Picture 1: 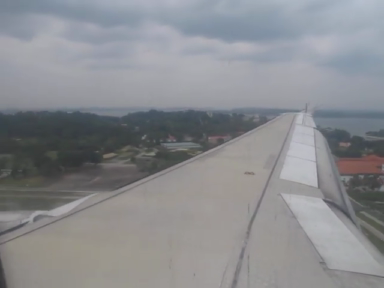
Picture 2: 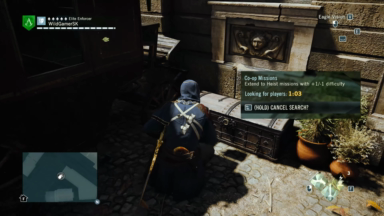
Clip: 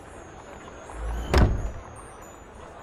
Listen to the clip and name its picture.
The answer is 2